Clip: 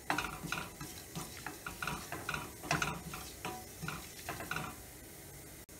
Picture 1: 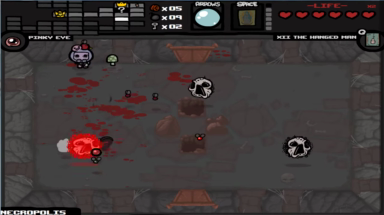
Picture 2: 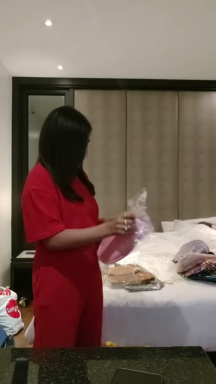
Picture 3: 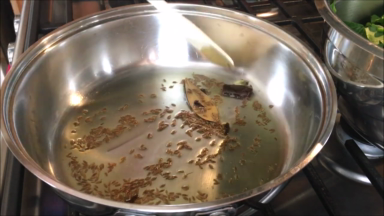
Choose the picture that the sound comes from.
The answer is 3